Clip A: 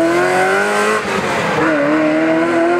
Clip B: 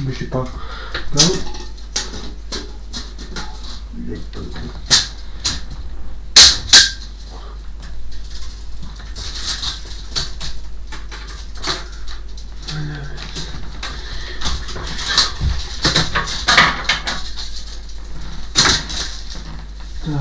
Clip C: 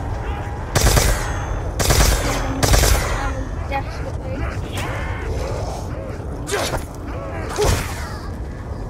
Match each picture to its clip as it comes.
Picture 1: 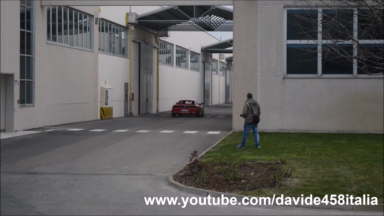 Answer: A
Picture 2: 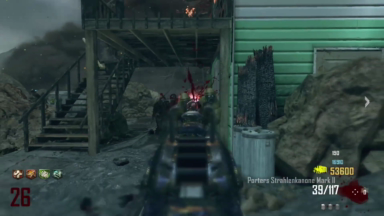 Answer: C